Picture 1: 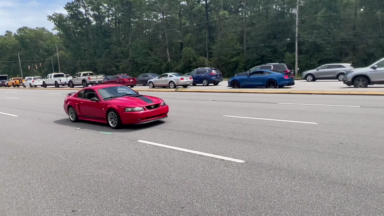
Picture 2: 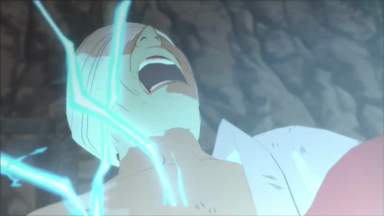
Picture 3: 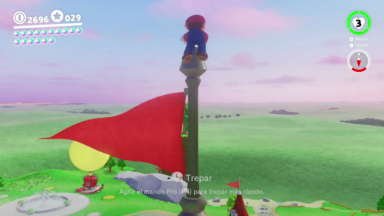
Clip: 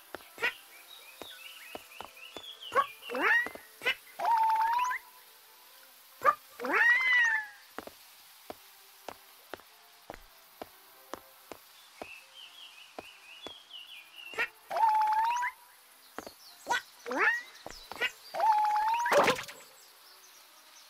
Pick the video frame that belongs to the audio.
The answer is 3